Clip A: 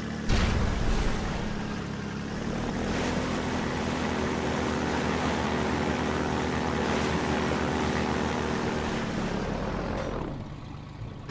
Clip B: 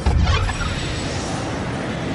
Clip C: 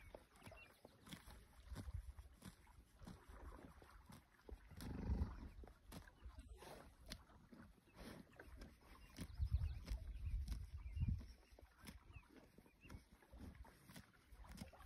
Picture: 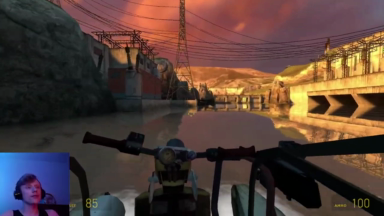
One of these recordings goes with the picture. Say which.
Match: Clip A